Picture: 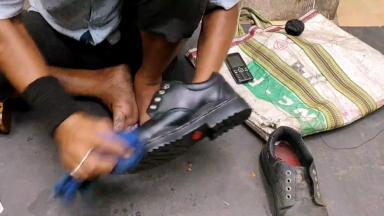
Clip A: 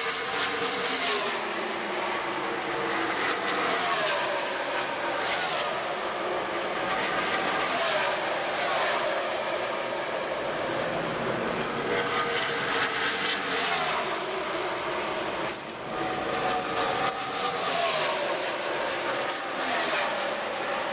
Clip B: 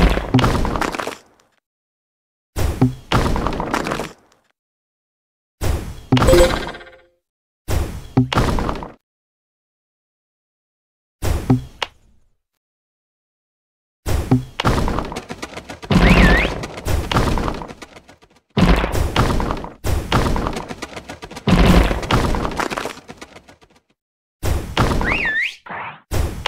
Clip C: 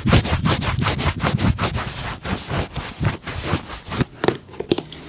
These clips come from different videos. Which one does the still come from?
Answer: C